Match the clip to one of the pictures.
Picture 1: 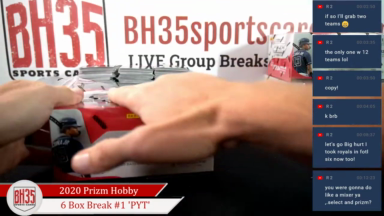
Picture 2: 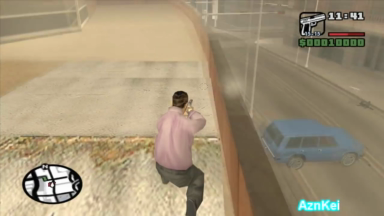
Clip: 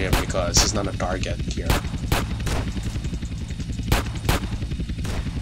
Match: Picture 2